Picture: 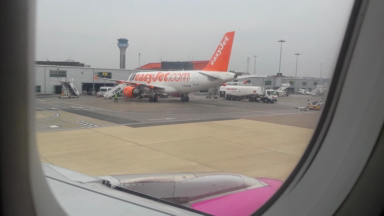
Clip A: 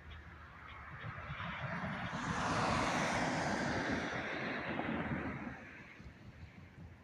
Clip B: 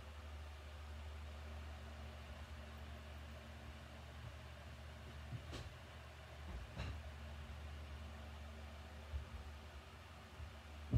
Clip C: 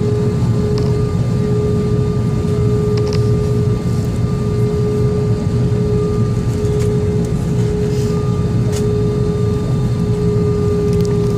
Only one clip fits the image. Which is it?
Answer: C